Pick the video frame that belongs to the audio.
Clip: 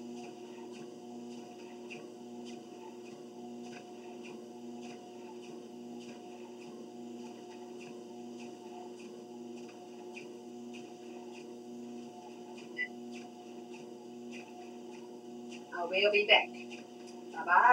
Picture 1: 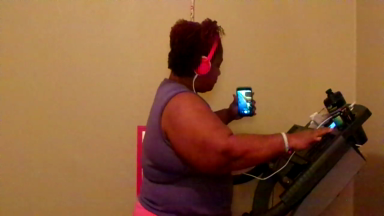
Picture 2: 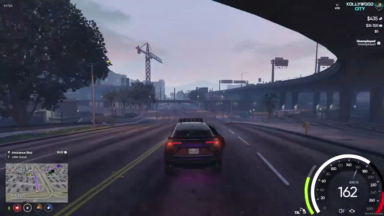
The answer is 1